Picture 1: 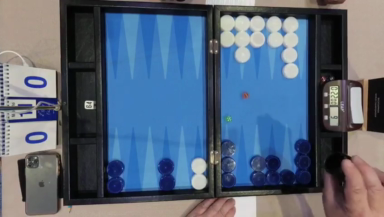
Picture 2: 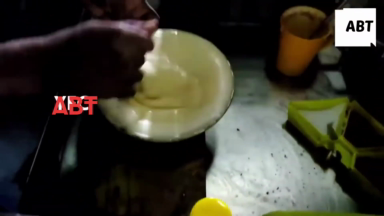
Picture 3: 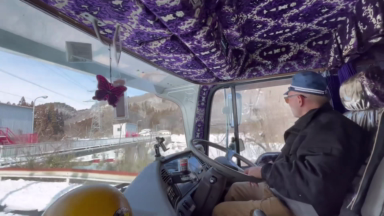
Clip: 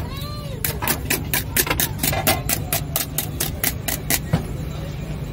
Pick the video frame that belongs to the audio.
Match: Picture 2